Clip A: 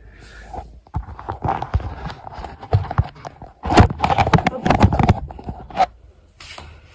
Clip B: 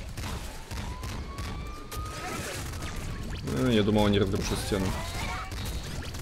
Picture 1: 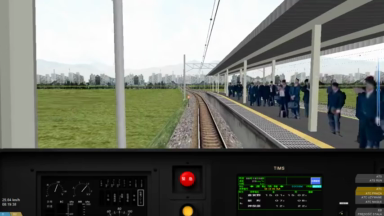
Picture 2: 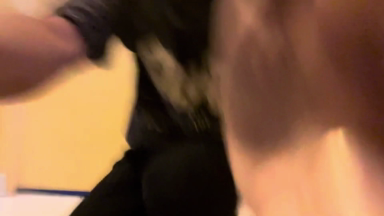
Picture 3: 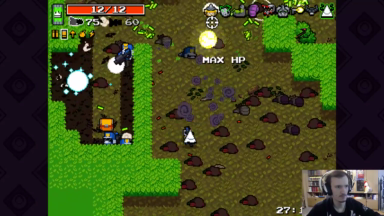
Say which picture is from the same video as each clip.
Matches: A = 2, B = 3